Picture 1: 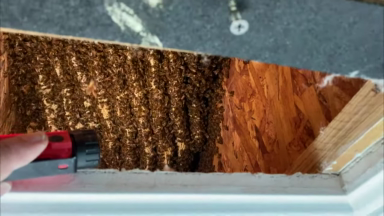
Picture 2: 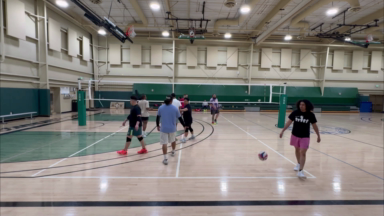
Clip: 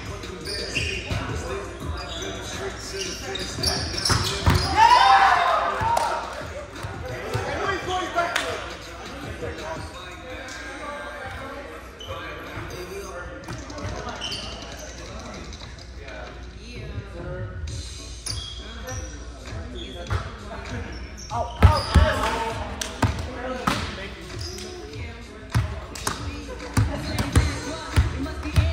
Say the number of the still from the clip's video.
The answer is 2